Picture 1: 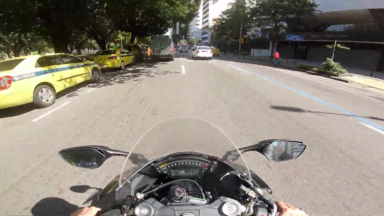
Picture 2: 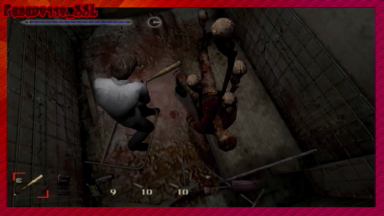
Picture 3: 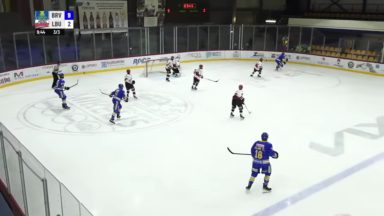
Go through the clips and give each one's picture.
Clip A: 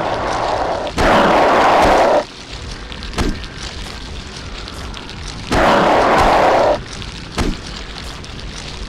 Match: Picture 2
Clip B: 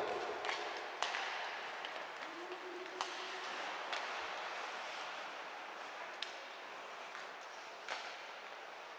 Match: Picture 3